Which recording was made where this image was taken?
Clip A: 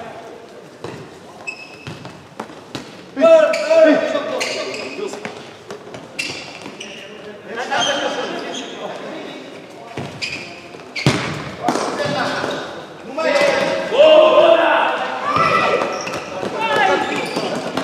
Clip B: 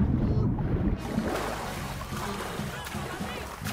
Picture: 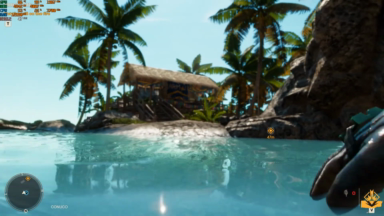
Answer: B